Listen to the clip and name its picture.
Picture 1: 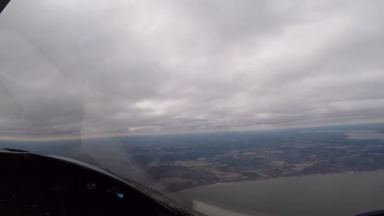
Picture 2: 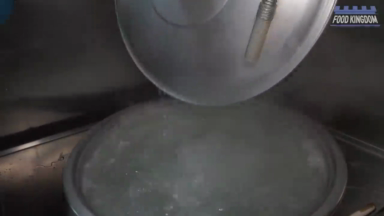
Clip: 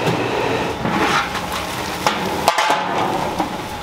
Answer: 2